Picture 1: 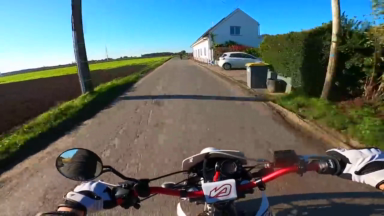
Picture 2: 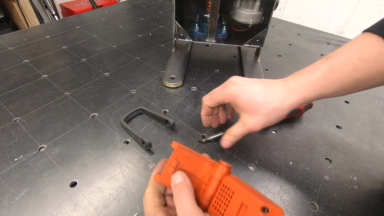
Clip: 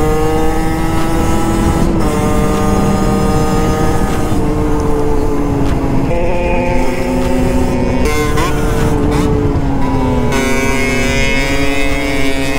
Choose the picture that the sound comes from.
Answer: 1